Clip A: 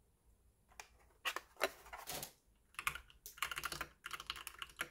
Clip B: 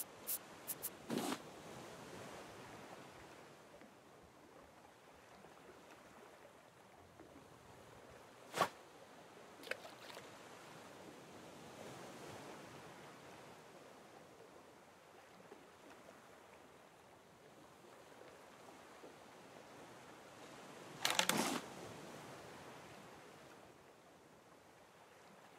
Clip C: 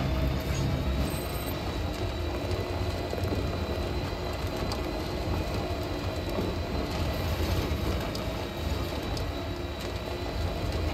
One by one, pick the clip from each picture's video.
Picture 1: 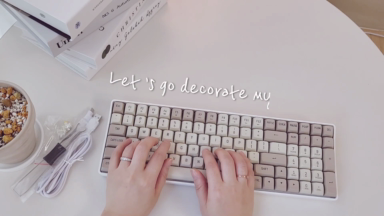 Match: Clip A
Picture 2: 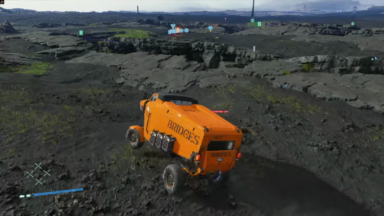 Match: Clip C